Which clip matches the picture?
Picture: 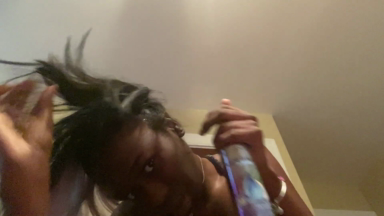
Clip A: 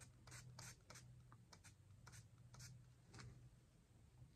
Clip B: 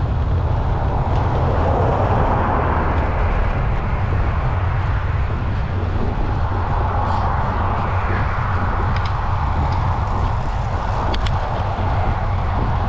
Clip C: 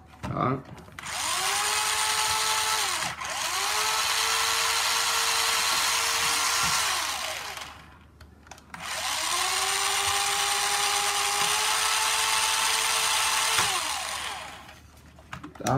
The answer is A